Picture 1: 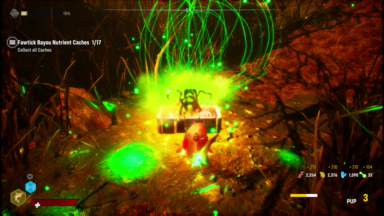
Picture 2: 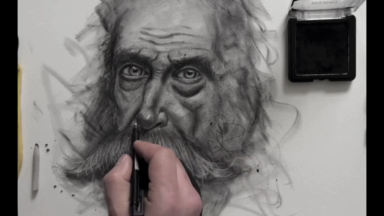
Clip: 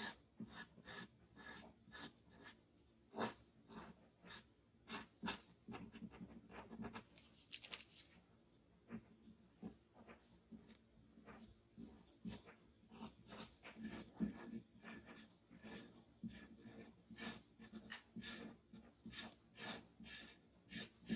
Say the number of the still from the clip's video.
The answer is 2